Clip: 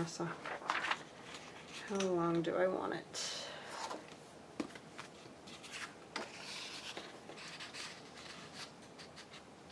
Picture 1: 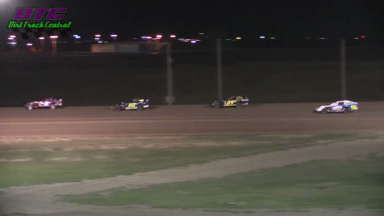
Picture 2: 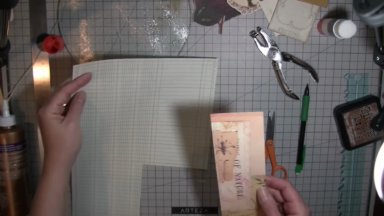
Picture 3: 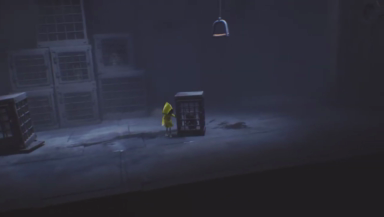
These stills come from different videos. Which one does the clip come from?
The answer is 2